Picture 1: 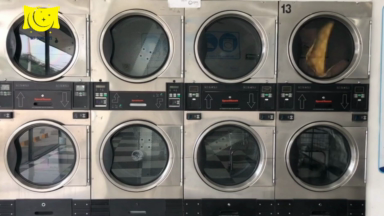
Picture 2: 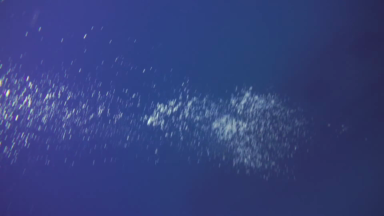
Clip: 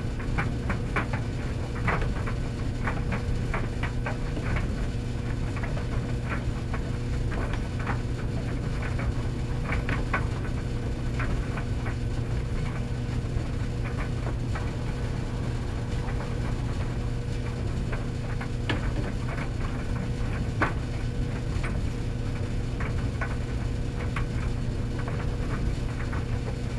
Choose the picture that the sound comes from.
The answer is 1